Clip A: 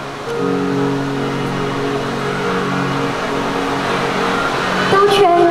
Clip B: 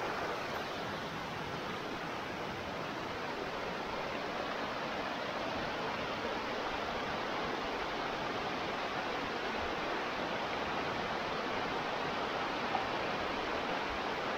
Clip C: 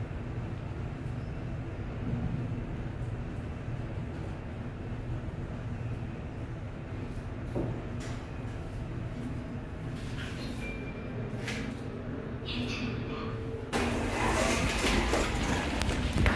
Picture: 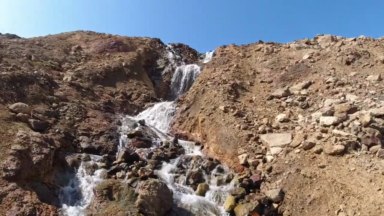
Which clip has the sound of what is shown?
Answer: B